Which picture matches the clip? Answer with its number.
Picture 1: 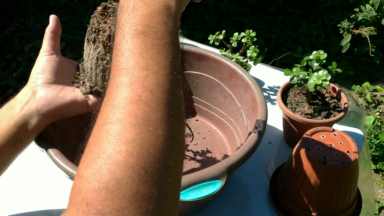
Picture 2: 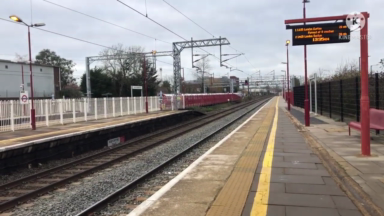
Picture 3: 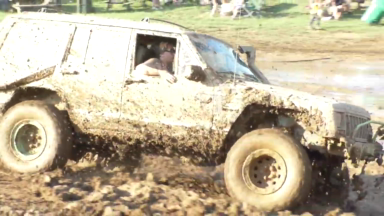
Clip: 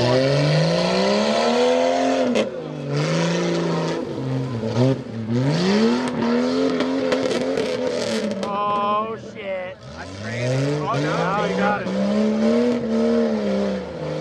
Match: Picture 3